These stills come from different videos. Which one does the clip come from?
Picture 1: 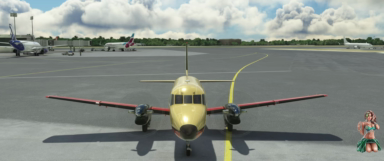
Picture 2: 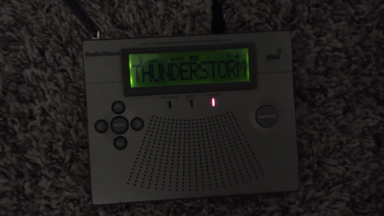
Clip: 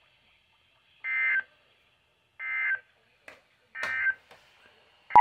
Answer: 2